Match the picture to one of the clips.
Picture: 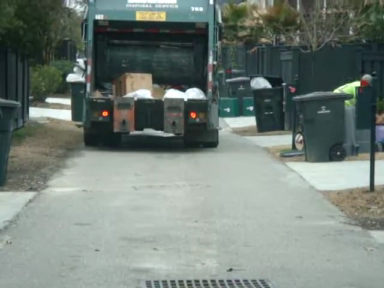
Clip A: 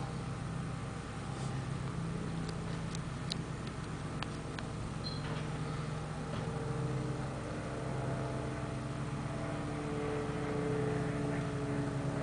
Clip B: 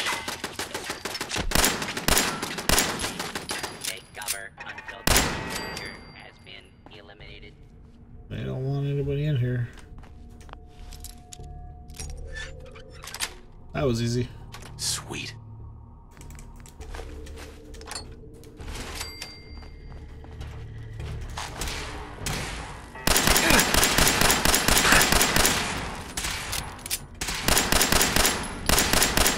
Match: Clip A